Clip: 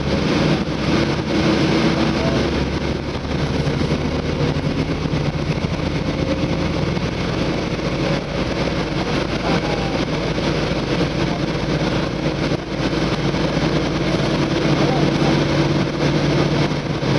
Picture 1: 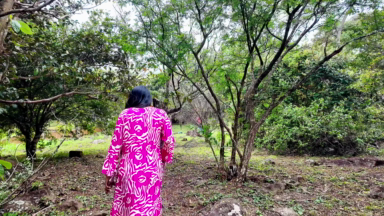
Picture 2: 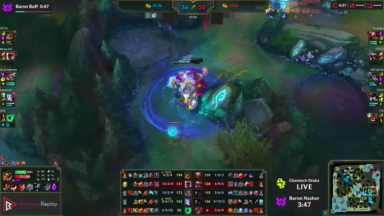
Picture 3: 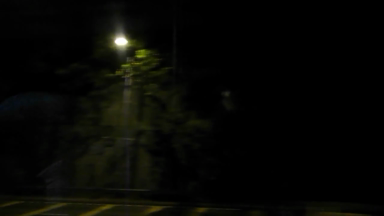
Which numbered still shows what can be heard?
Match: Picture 3